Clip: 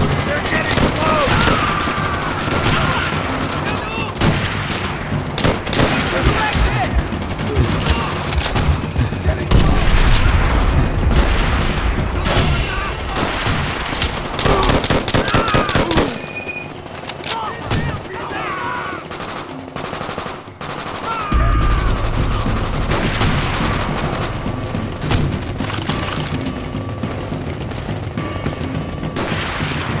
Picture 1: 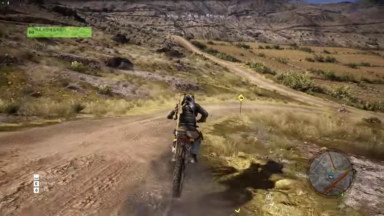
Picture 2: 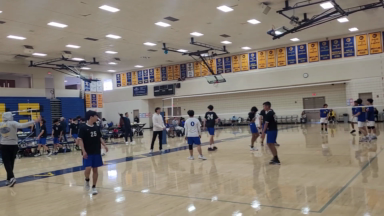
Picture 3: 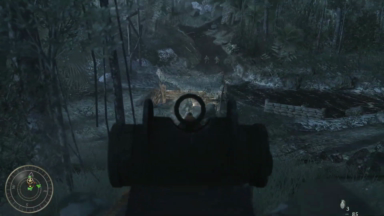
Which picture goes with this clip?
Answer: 3